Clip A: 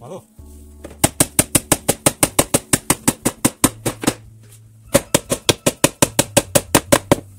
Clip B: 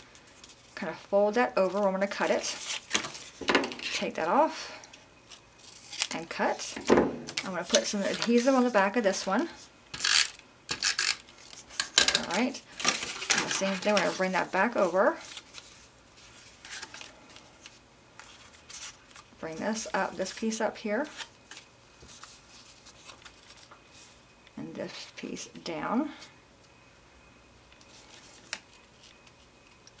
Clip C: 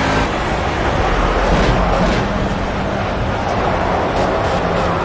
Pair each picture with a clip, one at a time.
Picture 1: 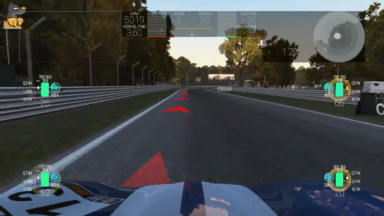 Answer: C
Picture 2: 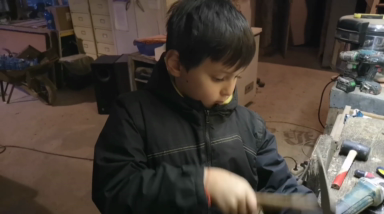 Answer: A